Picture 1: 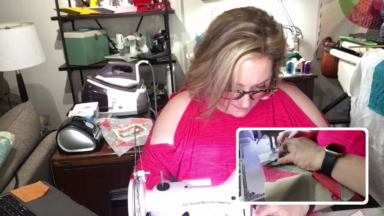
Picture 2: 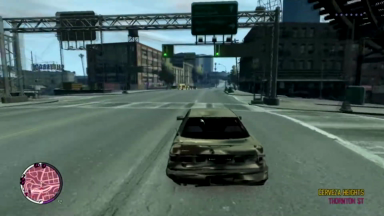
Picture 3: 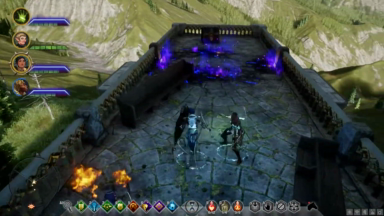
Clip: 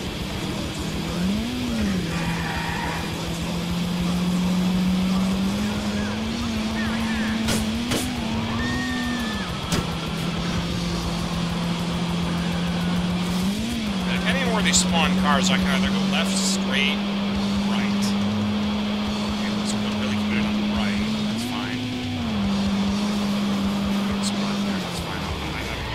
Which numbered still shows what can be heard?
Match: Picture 2